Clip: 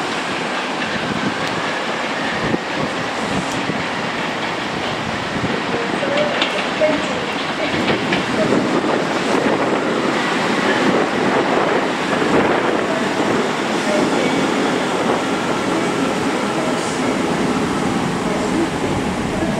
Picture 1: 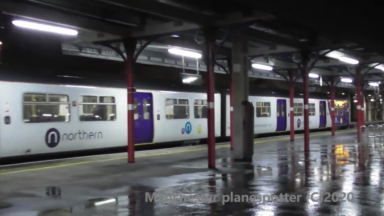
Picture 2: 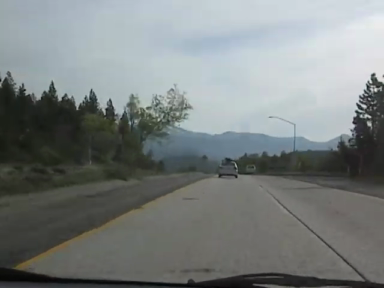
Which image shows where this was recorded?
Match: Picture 1